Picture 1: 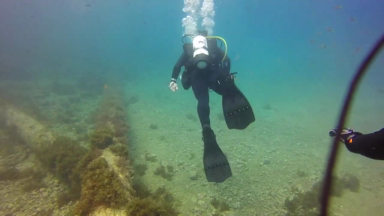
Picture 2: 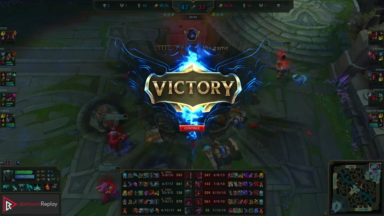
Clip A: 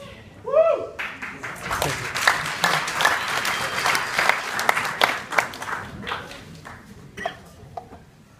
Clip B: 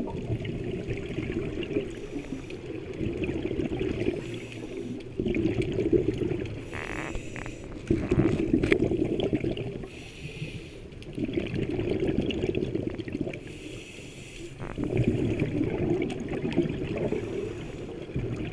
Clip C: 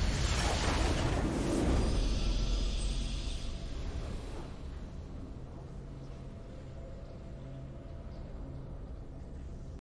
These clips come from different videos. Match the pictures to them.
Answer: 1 B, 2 C